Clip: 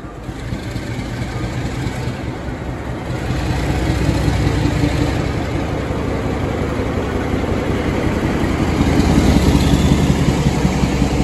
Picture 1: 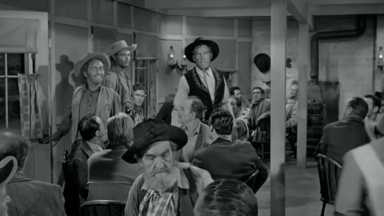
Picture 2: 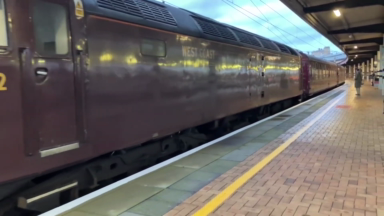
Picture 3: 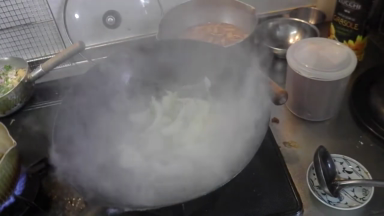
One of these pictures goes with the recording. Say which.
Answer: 2